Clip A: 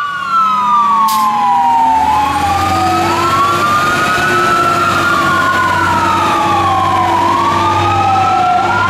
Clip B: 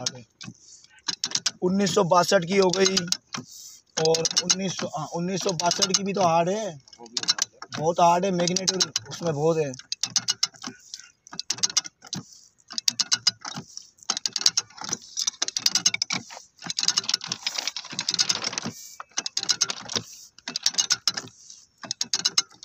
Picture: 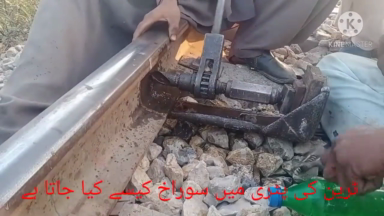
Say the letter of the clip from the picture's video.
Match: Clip B